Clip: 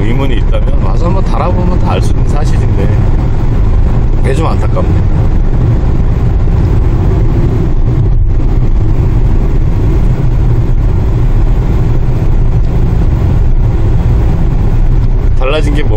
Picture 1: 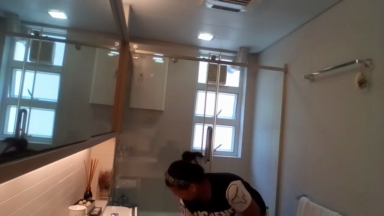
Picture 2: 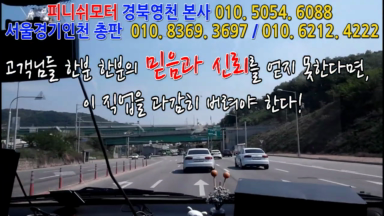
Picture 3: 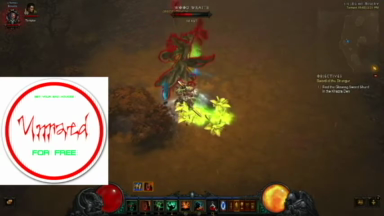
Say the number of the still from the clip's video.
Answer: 2